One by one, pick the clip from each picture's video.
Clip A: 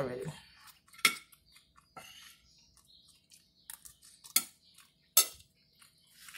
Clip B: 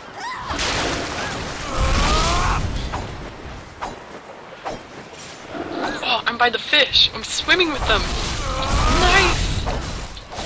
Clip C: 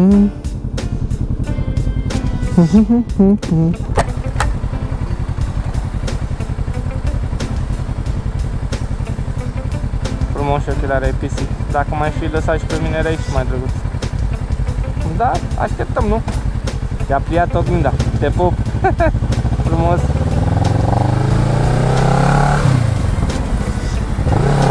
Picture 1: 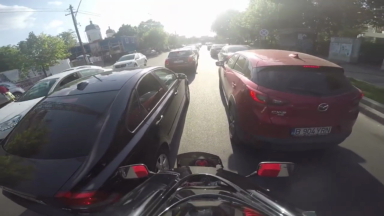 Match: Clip C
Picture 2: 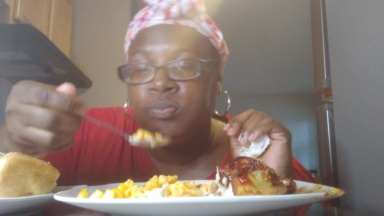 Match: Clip A